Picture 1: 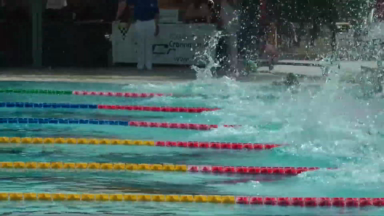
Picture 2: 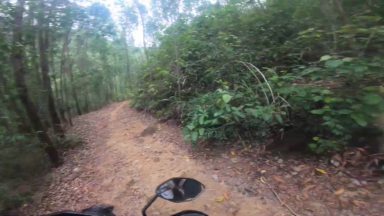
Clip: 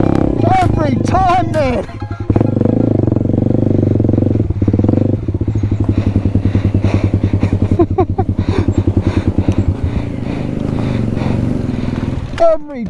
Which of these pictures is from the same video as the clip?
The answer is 2